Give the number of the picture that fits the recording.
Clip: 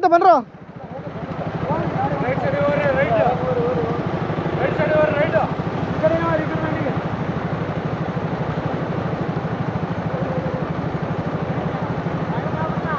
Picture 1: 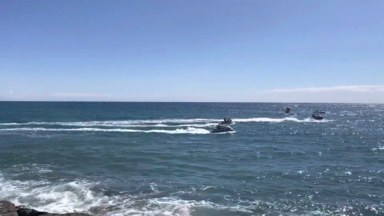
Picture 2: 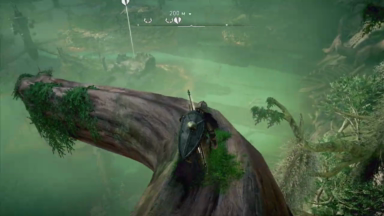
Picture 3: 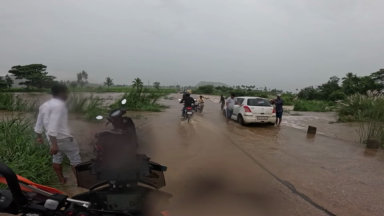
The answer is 3